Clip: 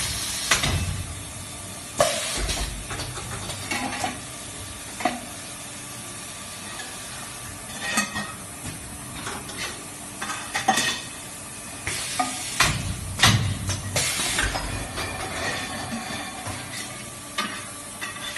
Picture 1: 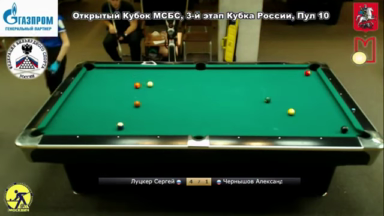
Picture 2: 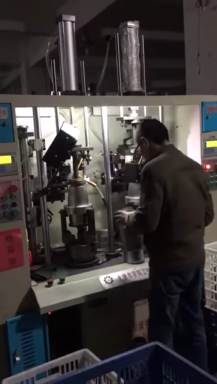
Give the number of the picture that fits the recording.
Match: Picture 2